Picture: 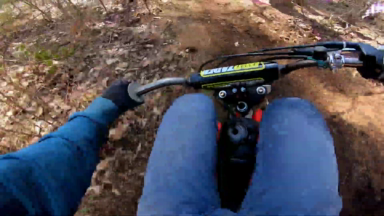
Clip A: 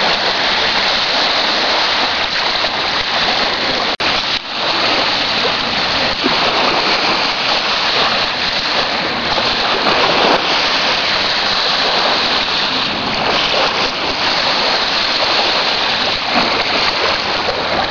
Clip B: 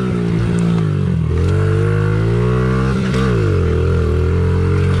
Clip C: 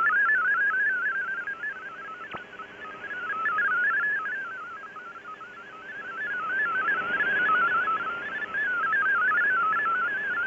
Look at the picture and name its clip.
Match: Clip B